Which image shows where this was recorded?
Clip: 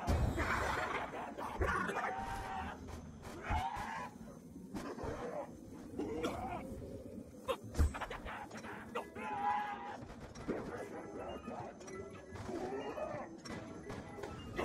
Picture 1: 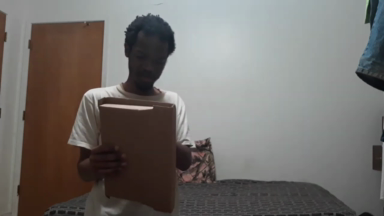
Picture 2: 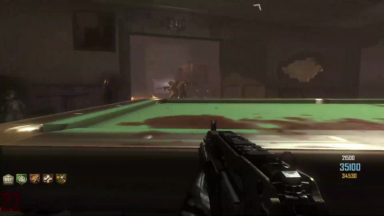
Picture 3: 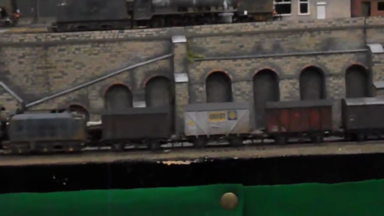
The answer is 2